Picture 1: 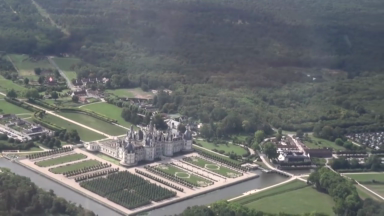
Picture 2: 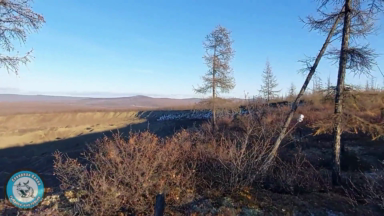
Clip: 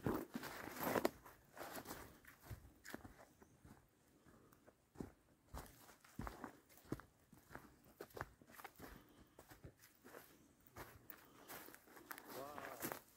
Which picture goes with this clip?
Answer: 2